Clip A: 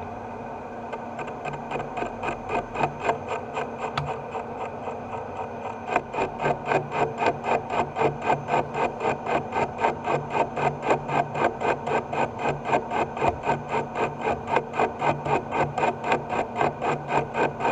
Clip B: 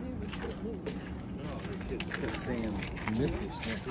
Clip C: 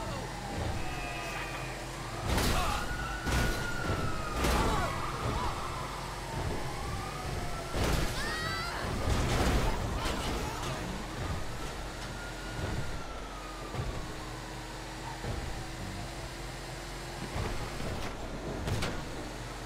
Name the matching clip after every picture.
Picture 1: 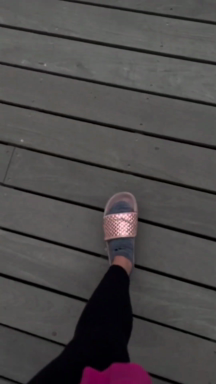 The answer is B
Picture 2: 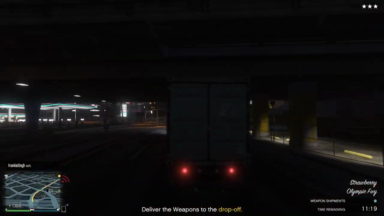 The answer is C